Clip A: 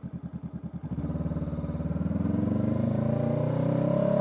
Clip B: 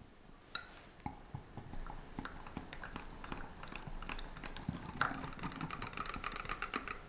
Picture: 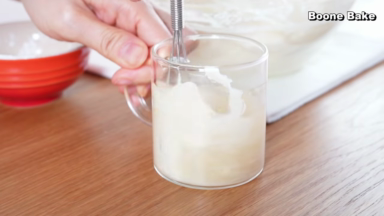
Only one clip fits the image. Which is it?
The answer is B